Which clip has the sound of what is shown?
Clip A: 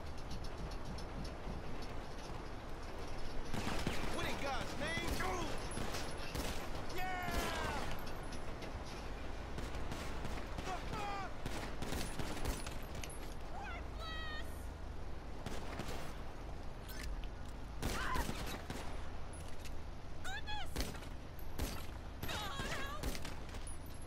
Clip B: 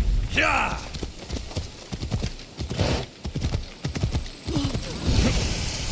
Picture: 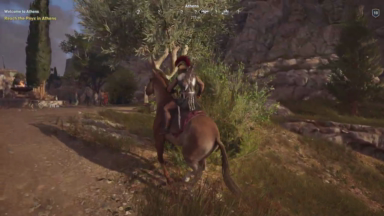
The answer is B